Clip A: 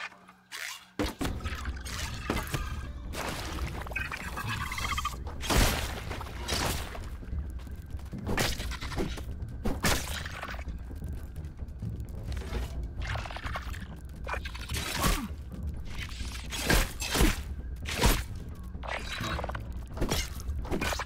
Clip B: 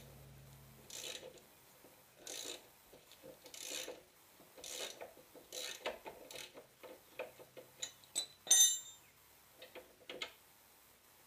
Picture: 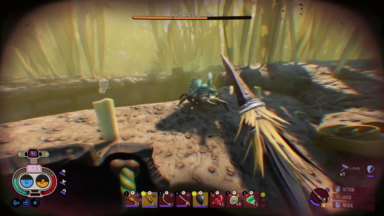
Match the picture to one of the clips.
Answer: A